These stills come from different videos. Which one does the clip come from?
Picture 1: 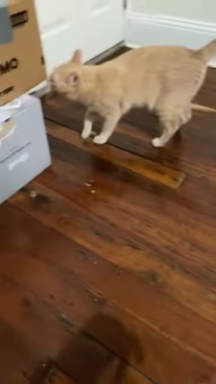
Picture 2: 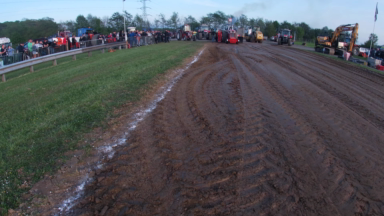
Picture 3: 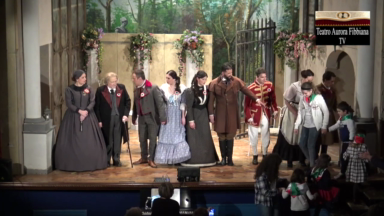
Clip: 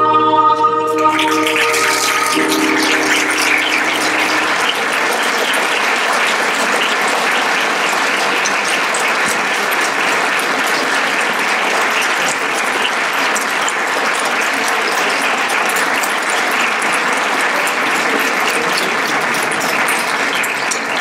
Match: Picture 3